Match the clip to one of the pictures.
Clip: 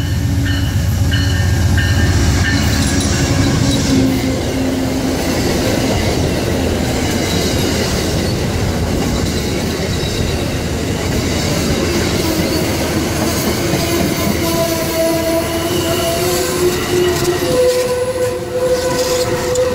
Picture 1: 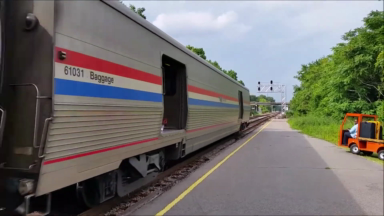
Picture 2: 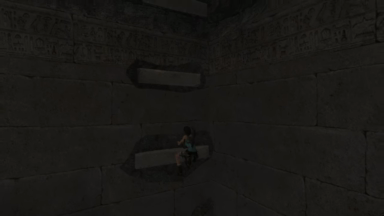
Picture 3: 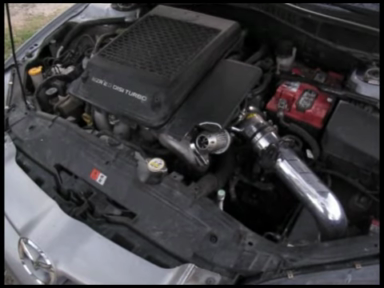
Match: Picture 1